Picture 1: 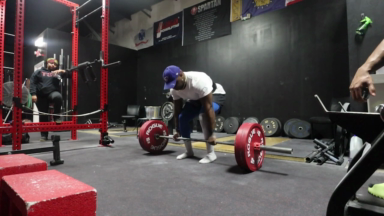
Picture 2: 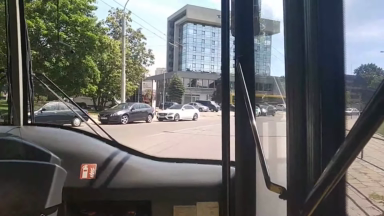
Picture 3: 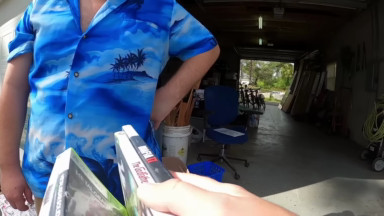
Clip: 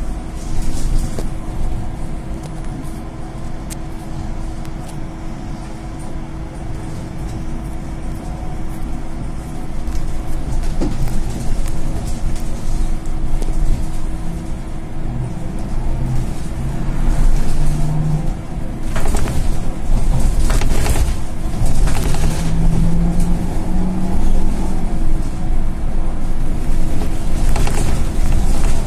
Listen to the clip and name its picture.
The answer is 2